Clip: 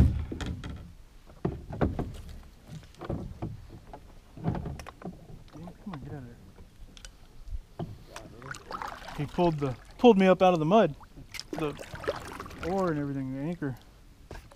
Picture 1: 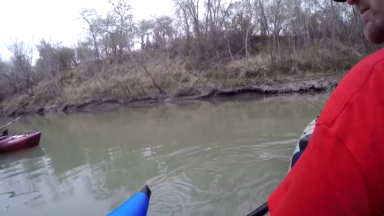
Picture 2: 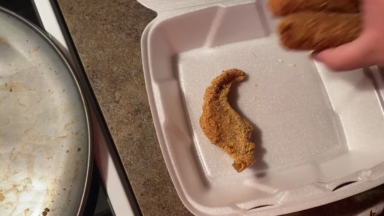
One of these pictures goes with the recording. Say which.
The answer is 1